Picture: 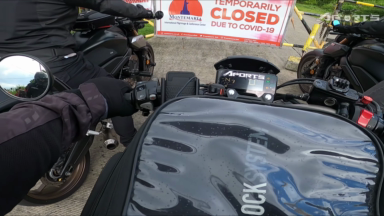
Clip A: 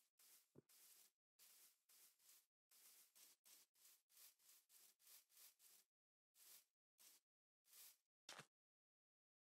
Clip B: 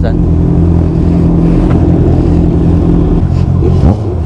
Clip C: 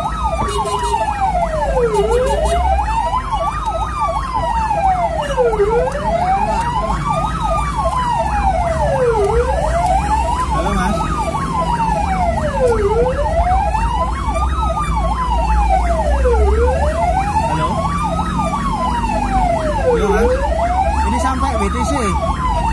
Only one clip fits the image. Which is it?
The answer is B